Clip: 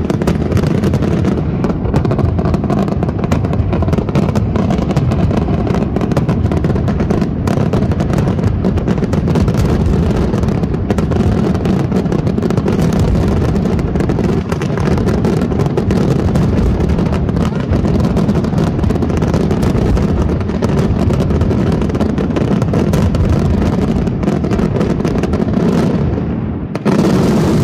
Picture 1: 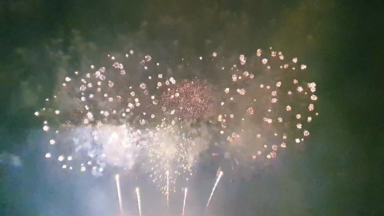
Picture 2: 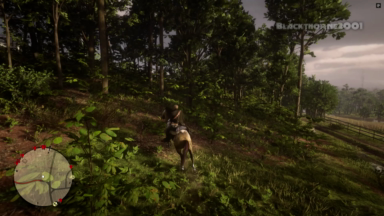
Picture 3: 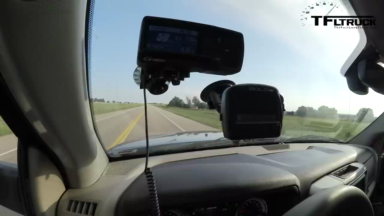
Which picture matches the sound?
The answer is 1